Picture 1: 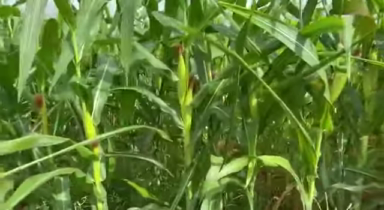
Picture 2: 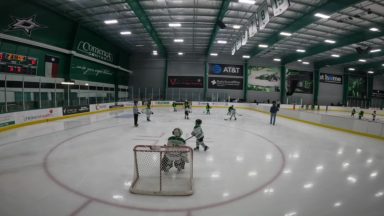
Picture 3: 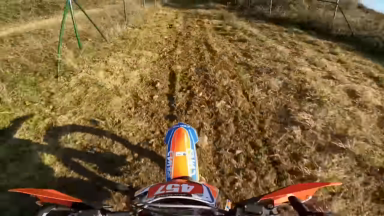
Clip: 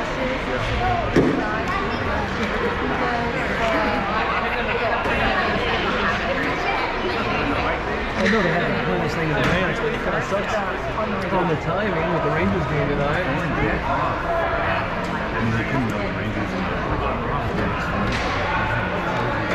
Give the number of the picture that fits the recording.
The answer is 2